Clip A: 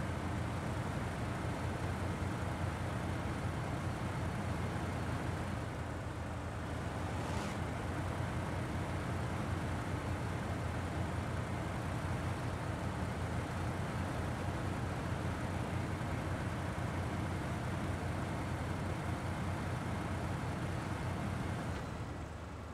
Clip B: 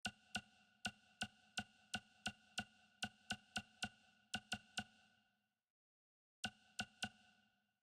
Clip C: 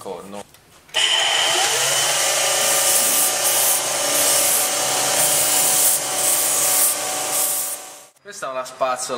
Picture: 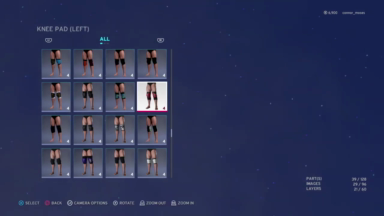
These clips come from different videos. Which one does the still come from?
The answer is B